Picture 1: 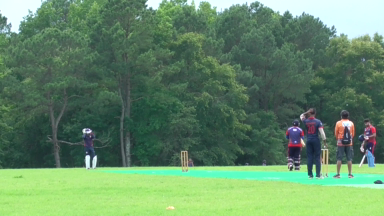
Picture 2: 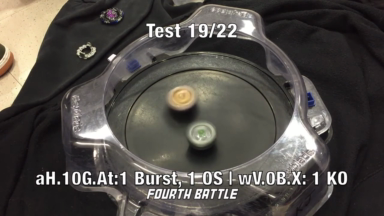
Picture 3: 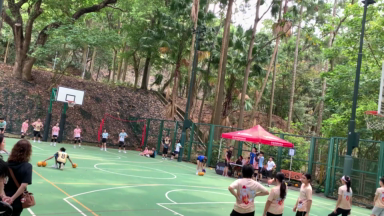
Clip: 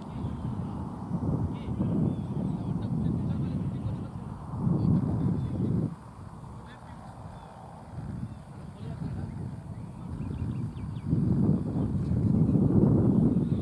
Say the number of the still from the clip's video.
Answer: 1